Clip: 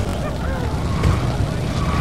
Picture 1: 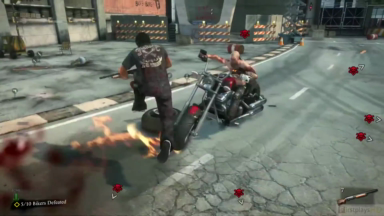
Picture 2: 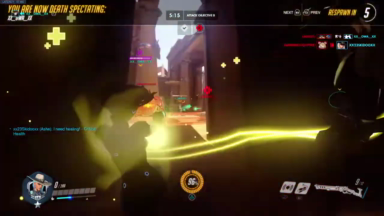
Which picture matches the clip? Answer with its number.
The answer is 1